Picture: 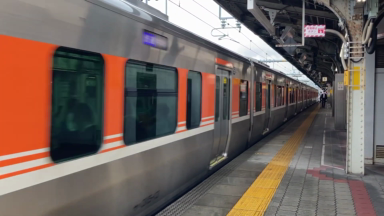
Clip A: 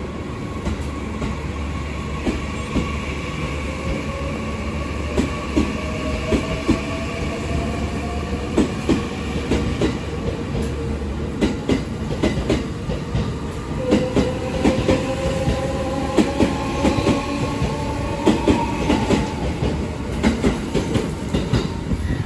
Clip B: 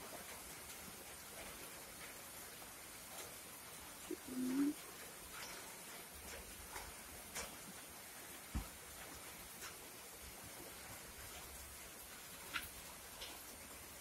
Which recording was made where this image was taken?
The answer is A